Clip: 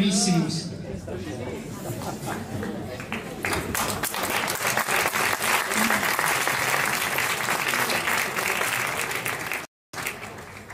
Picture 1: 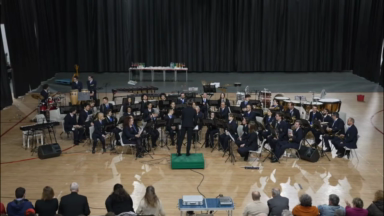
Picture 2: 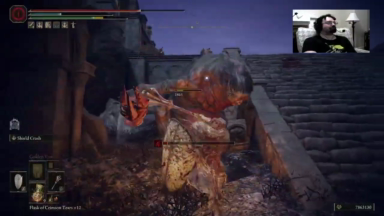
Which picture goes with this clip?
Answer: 1